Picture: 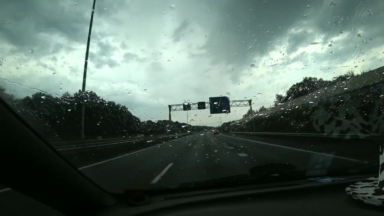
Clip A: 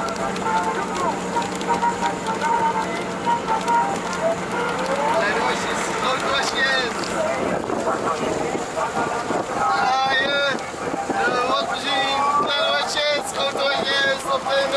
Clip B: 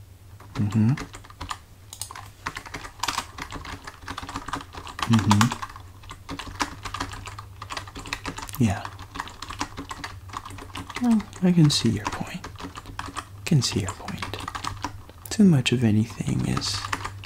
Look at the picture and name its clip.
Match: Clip A